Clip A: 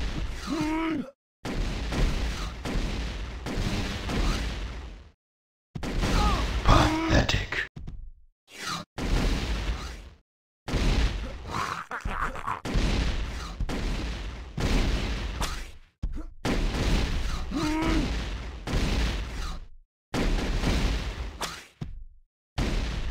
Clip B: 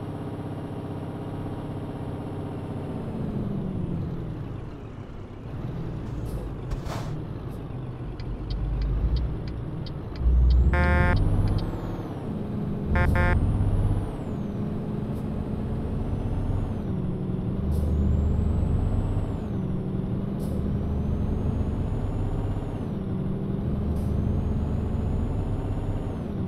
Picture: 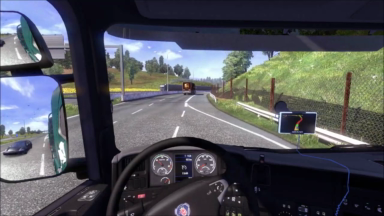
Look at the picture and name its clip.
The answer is B